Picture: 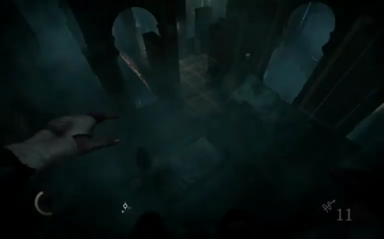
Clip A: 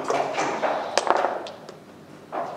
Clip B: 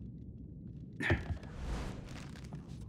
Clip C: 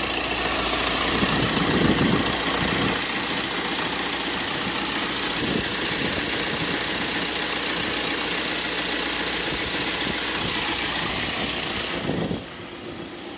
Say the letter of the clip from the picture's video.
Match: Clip B